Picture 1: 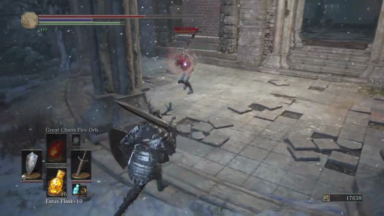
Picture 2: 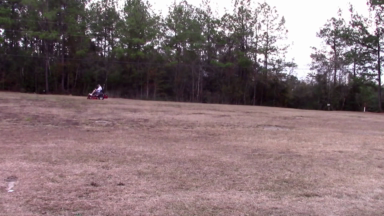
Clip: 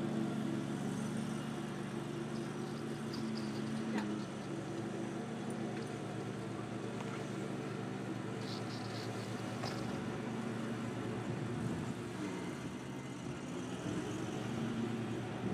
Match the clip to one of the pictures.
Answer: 2